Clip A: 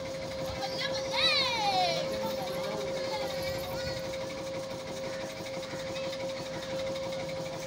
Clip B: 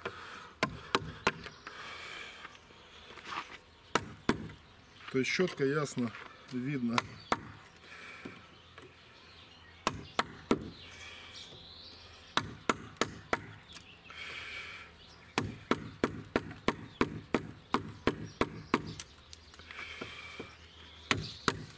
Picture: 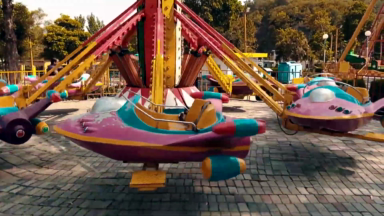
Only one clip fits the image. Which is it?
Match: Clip A